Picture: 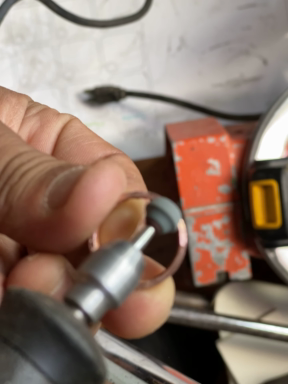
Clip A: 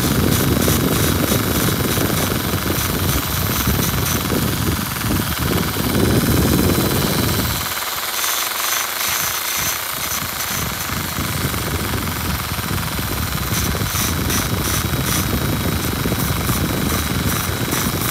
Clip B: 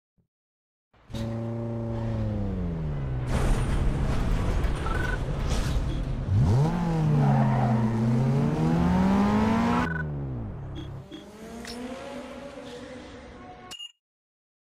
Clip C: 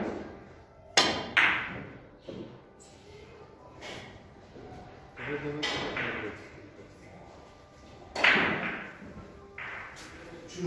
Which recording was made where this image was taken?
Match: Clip A